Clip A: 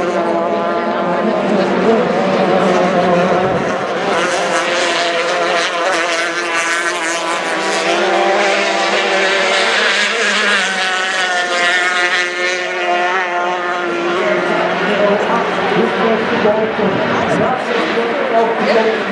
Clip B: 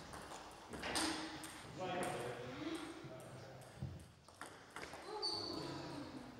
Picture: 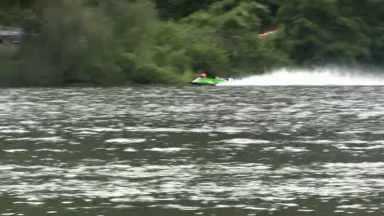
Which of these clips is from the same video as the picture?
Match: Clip A